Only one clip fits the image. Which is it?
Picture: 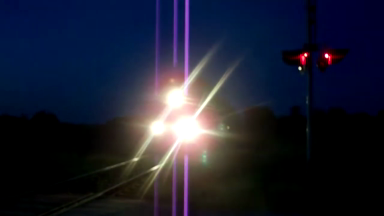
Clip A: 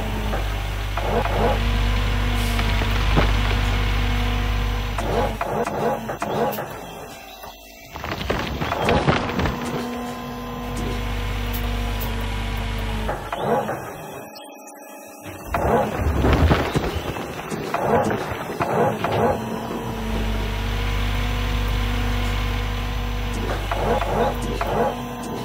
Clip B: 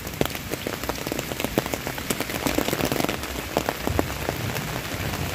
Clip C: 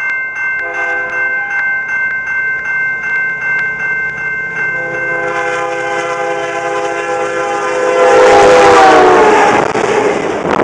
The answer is C